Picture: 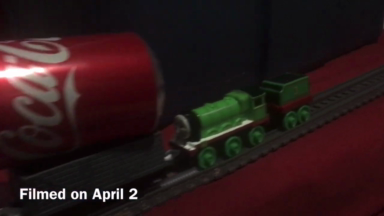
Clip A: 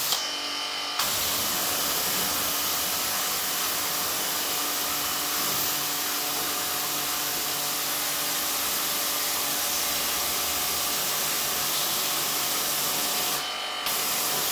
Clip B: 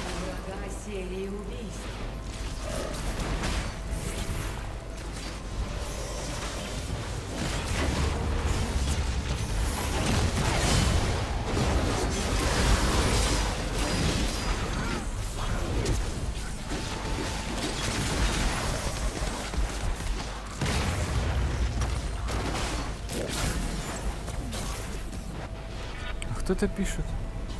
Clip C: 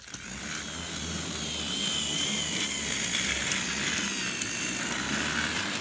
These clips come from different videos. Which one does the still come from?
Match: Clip C